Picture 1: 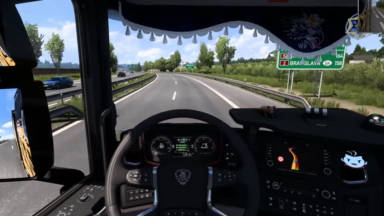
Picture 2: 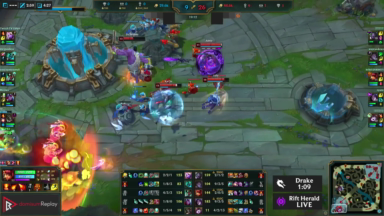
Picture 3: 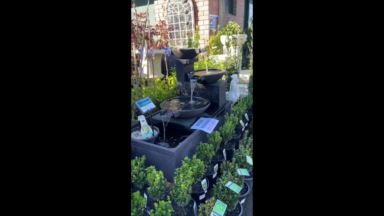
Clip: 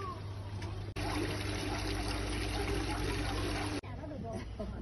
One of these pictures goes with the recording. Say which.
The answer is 3